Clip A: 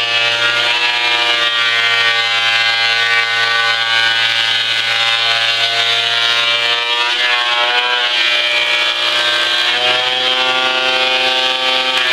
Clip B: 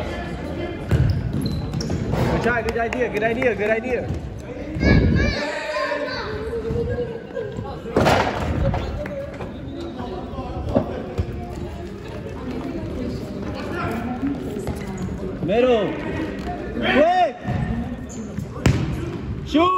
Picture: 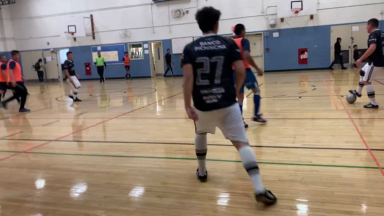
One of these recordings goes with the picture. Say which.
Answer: B